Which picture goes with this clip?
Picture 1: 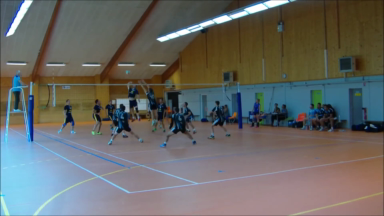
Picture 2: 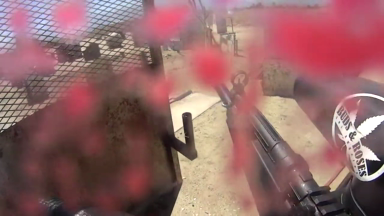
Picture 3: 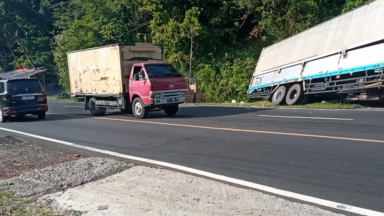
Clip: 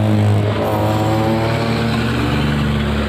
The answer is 3